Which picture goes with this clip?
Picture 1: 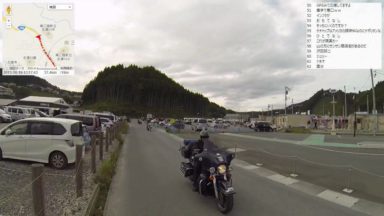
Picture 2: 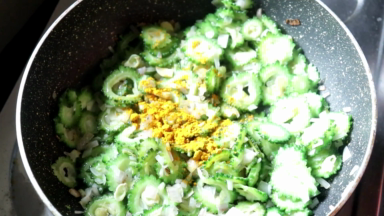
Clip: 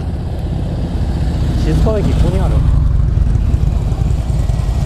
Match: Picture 1